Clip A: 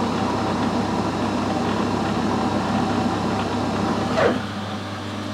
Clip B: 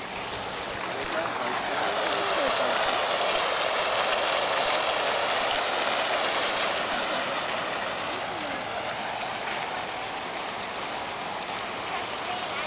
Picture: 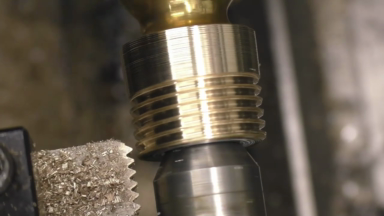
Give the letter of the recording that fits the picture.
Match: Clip A